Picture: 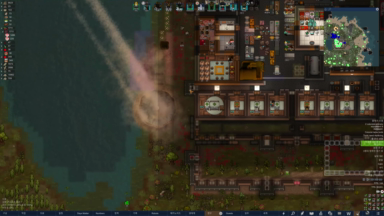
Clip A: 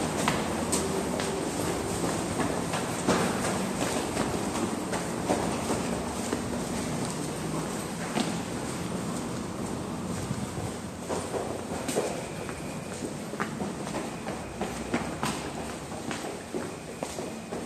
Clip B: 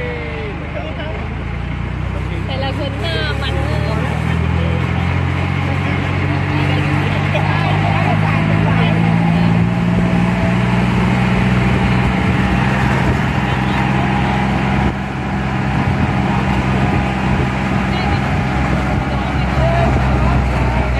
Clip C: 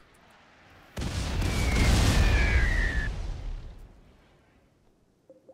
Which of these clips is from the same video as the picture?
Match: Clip C